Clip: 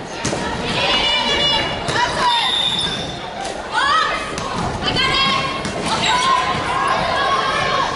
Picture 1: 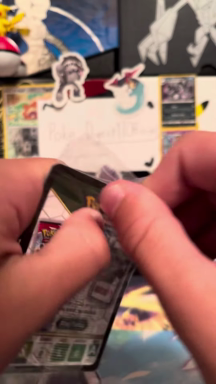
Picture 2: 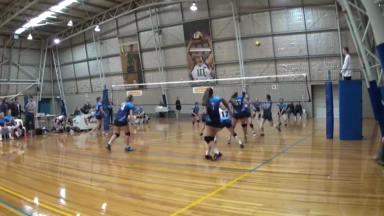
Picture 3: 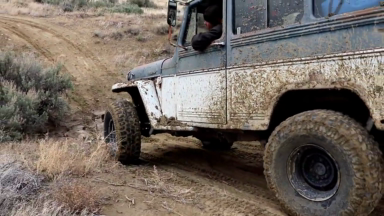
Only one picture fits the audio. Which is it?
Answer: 2